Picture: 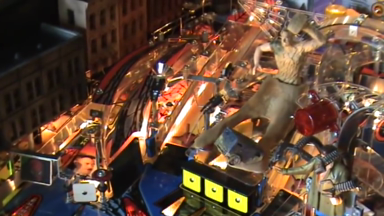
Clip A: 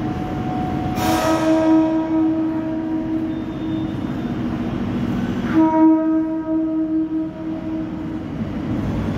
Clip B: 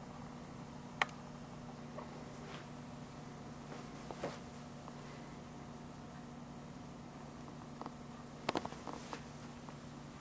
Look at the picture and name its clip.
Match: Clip B